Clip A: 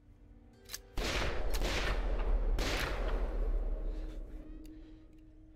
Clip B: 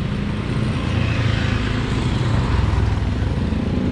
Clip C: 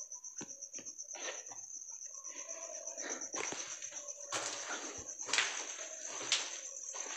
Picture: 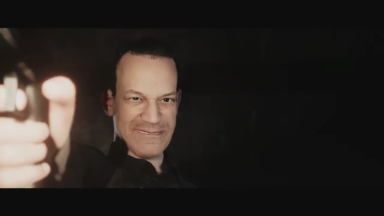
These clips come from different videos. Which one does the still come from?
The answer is A